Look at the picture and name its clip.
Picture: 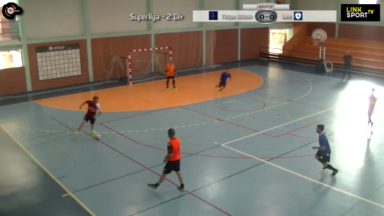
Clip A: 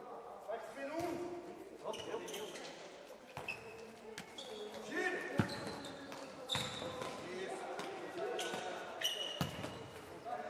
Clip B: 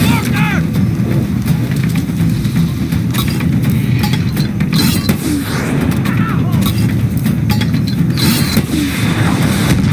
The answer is A